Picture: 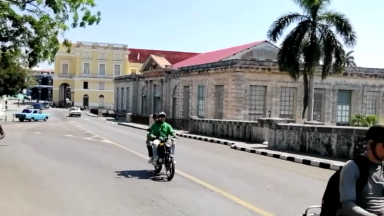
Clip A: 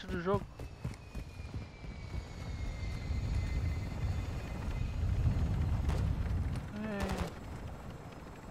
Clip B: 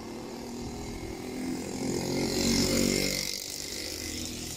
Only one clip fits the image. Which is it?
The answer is B